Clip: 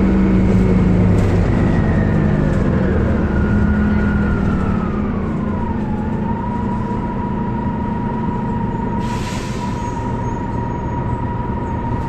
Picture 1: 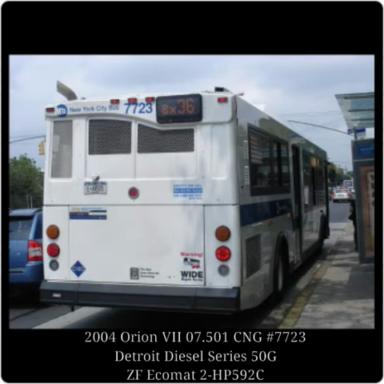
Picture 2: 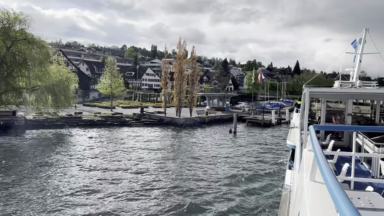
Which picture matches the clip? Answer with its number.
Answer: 1